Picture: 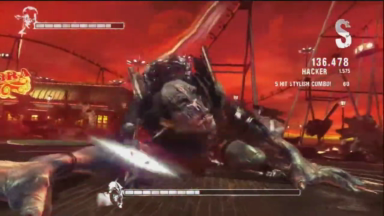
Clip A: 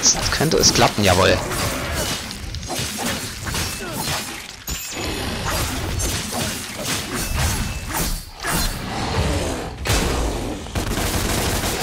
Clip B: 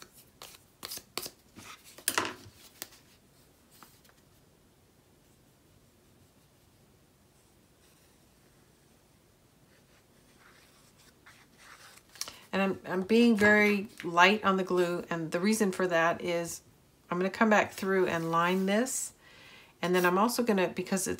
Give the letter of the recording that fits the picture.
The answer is A